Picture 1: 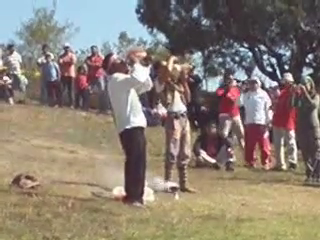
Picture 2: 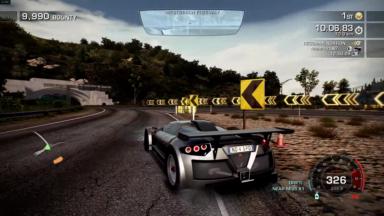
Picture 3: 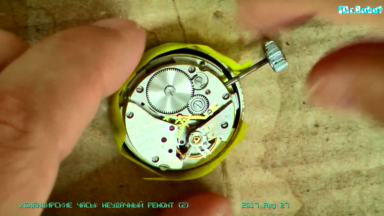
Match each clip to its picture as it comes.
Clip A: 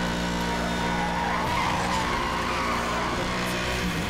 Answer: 2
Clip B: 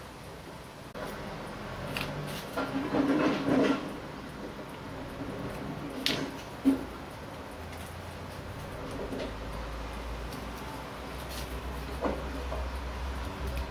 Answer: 3